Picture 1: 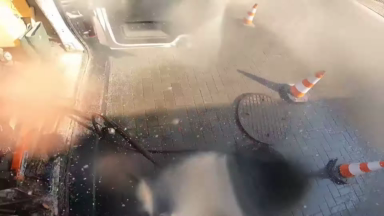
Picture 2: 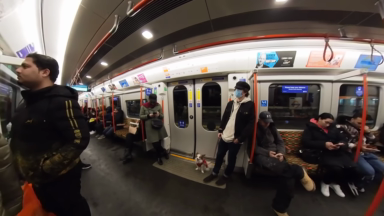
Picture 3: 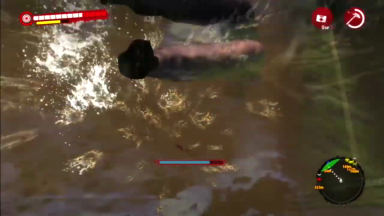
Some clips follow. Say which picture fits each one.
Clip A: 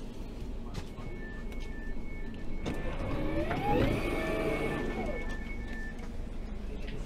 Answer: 2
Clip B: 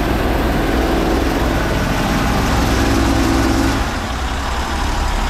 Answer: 1